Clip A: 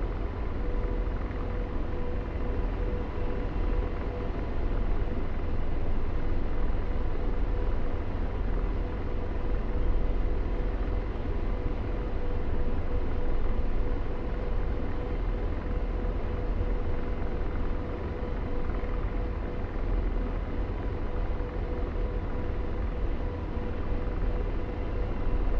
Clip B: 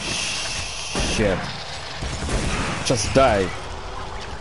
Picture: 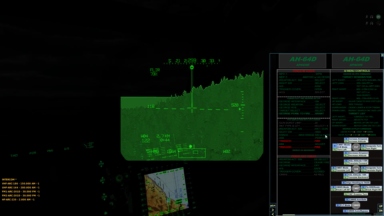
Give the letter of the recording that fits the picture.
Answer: A